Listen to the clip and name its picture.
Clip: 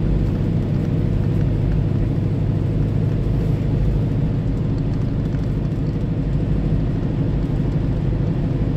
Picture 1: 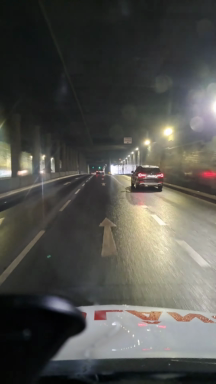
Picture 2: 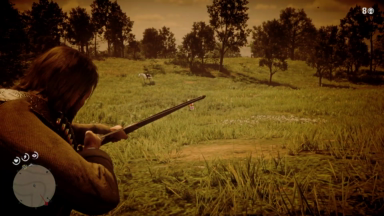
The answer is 1